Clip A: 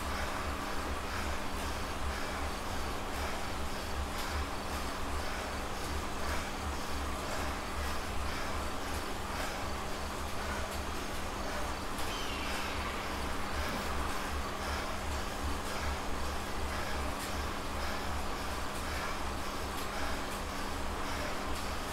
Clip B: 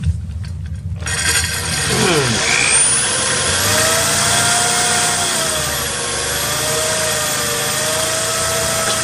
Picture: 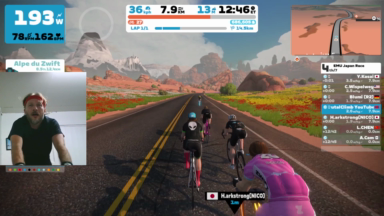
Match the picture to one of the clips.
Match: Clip A